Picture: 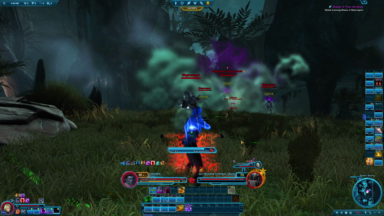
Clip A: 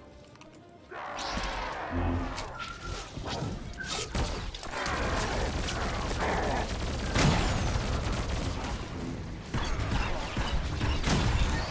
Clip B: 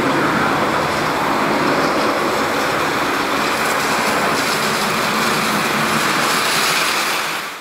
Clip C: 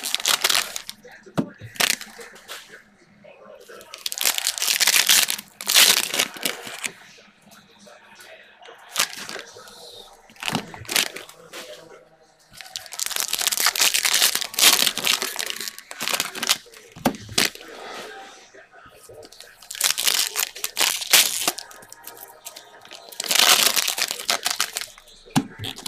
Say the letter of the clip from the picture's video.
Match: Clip A